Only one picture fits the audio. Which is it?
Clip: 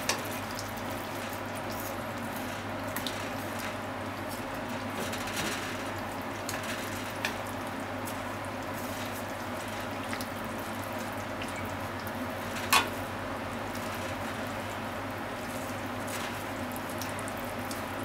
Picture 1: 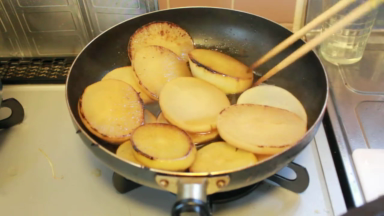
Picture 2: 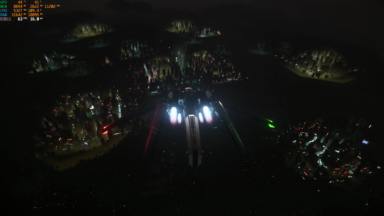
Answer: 1